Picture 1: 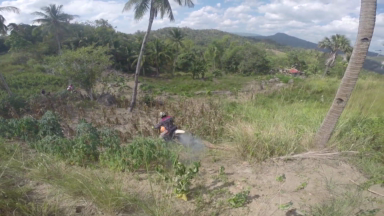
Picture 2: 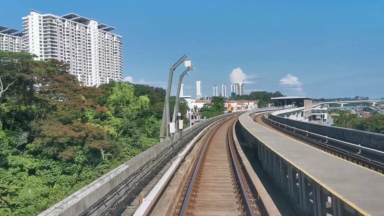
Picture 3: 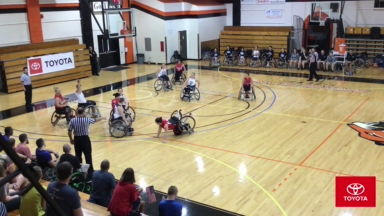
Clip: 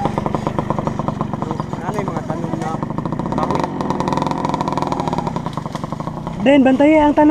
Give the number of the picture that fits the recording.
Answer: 1